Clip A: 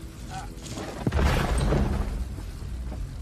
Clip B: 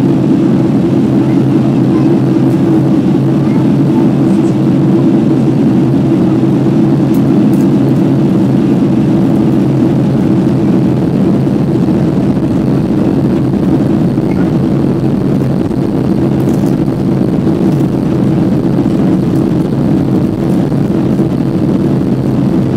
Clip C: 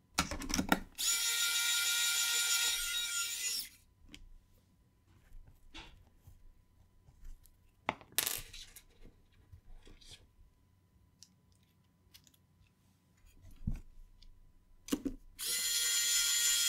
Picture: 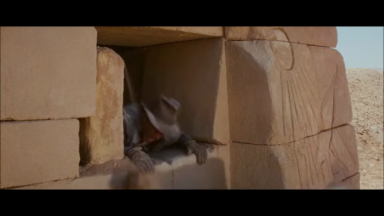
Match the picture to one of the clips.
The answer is A